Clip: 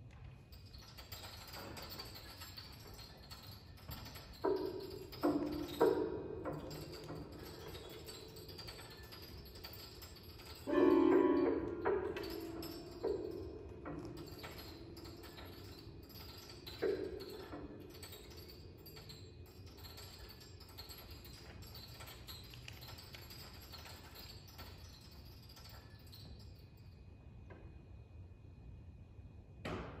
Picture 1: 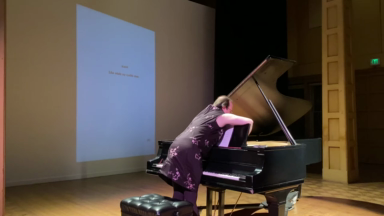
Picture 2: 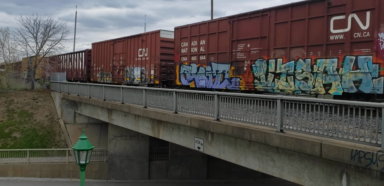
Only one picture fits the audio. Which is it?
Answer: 1